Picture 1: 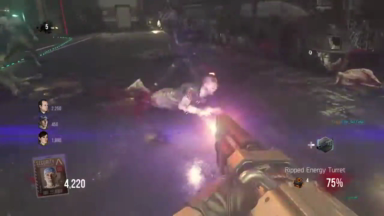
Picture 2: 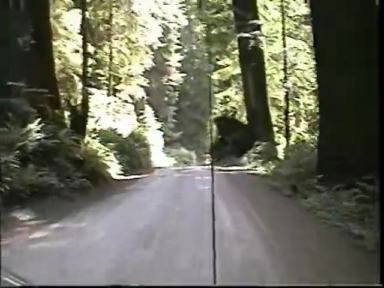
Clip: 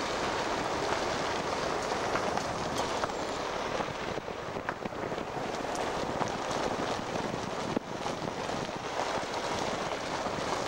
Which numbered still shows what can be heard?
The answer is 2